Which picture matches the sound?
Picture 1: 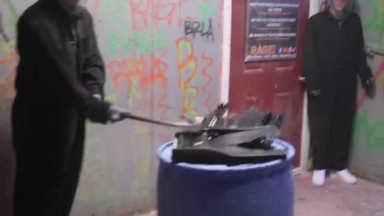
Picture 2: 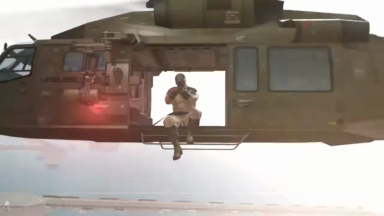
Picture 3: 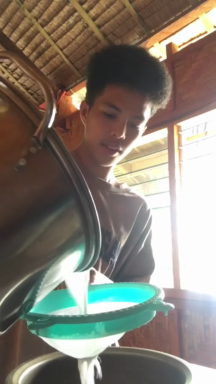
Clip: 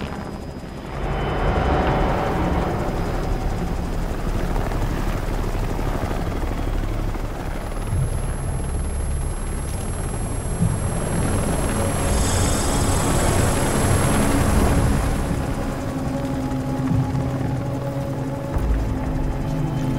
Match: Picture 2